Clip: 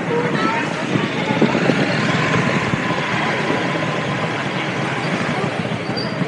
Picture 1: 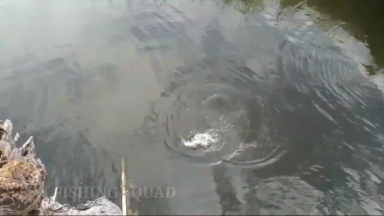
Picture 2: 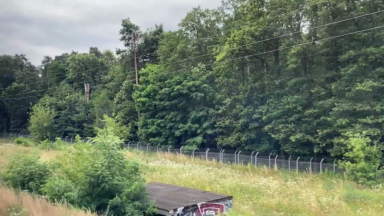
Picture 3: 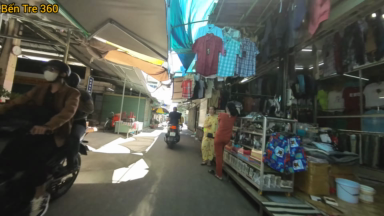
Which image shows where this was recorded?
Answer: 3